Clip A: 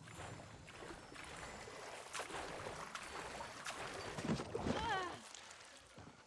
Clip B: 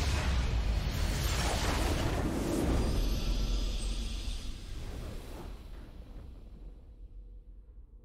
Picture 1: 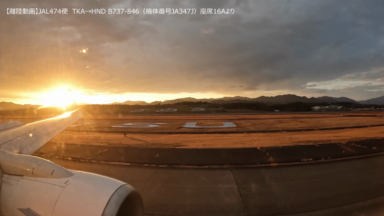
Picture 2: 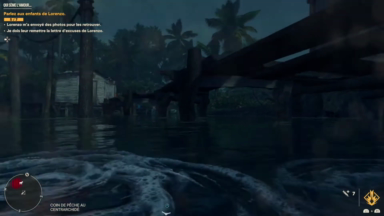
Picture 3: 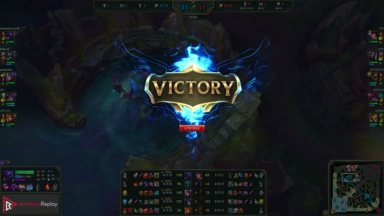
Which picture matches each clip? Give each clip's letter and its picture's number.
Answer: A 2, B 3